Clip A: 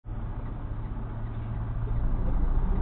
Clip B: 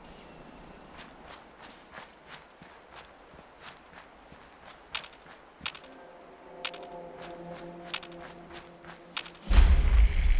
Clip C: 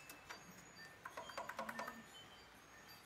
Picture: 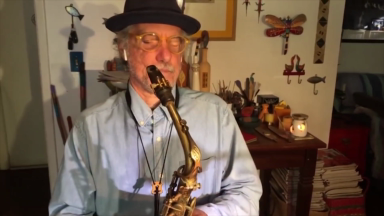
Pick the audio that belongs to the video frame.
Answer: C